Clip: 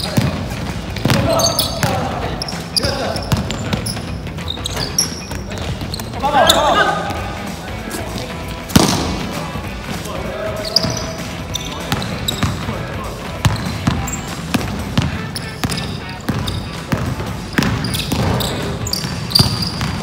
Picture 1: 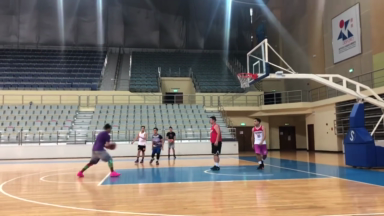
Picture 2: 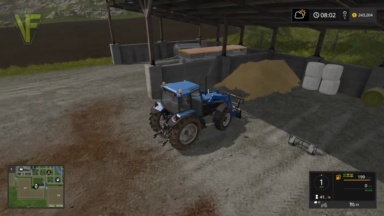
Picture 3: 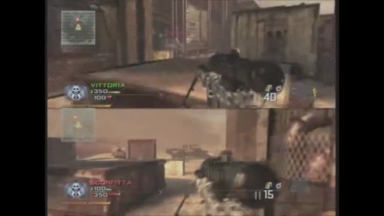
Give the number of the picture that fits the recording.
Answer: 1